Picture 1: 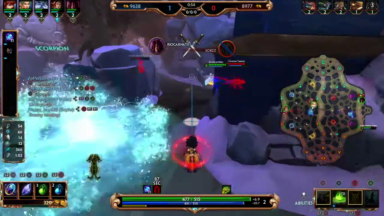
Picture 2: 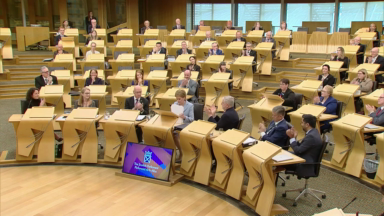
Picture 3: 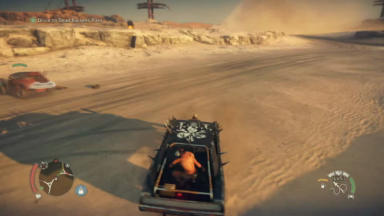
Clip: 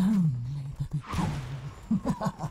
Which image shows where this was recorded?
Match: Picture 1